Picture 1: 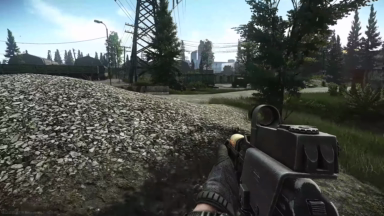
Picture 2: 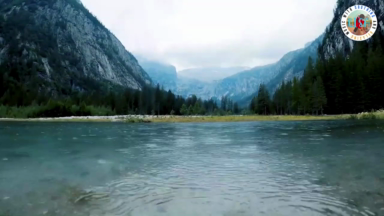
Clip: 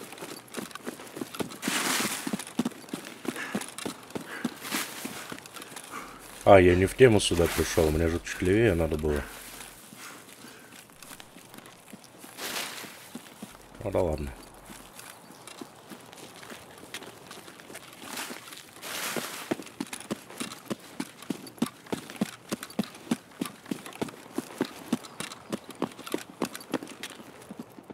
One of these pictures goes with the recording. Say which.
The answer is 1